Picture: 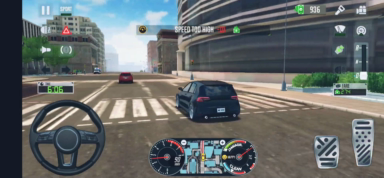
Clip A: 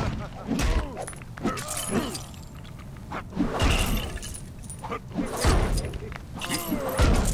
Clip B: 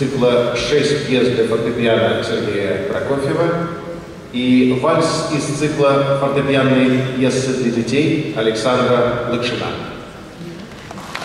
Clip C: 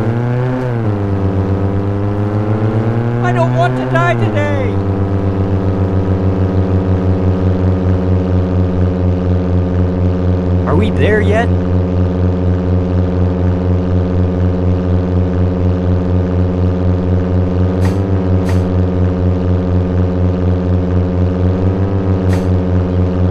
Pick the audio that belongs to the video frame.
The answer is C